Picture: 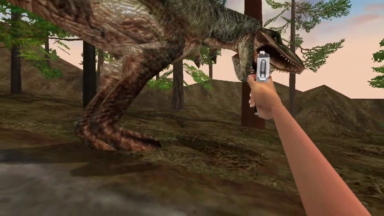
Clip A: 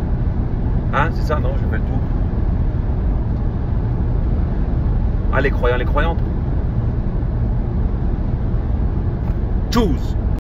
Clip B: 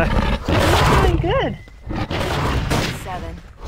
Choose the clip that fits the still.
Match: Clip B